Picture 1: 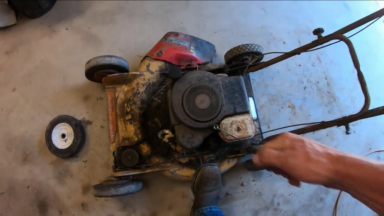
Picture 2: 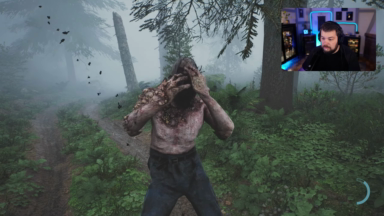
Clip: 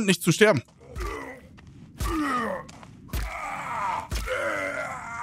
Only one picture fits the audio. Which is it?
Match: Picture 2